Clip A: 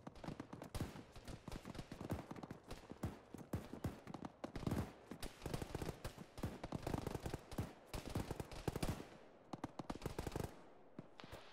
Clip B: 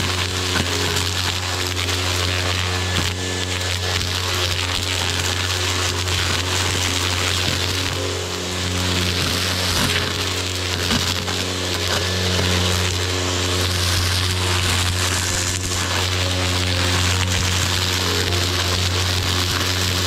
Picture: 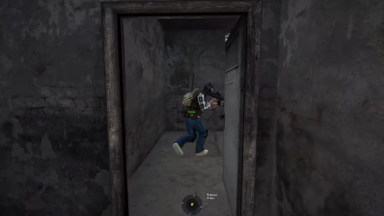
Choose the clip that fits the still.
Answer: A